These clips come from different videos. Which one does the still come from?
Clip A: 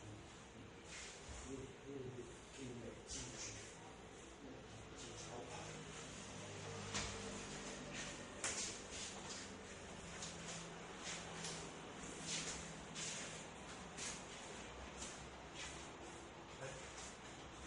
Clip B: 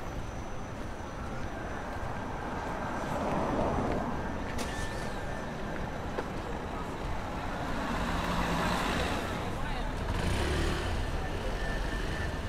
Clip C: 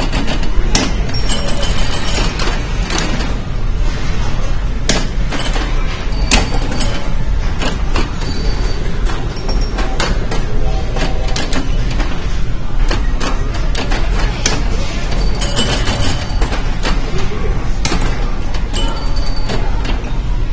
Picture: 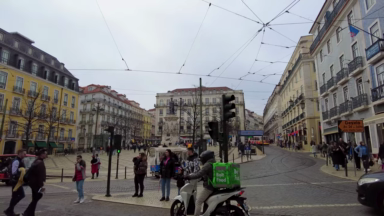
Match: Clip B